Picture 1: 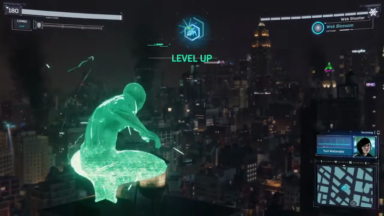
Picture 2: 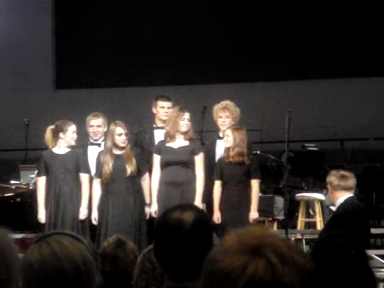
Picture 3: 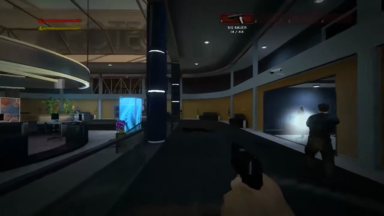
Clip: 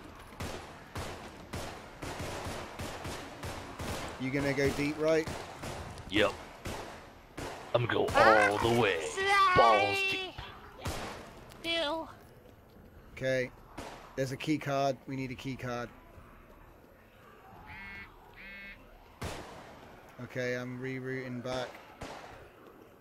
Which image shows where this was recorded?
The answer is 3